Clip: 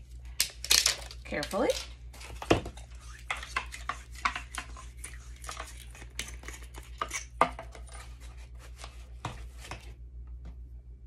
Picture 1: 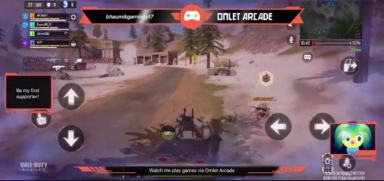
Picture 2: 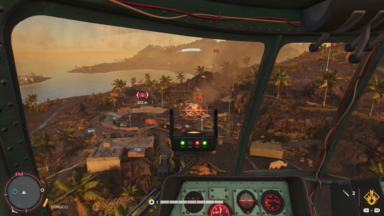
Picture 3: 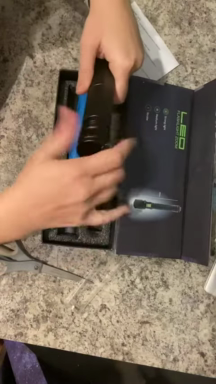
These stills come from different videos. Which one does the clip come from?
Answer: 3